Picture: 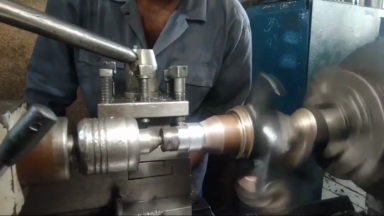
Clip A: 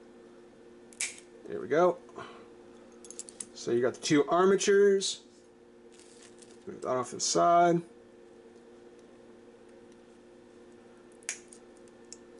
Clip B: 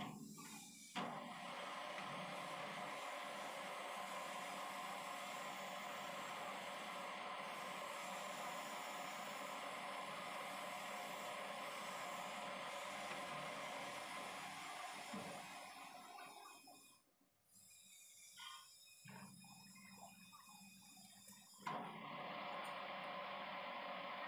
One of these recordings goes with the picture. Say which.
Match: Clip B